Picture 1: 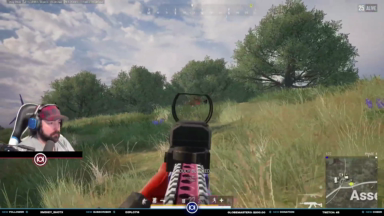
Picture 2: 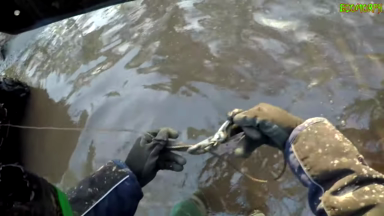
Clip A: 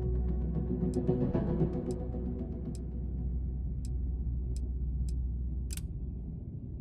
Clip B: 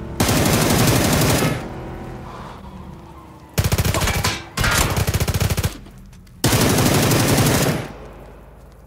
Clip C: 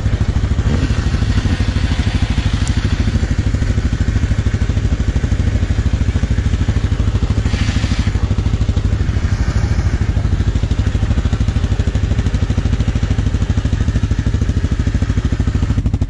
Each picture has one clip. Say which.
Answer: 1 B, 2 C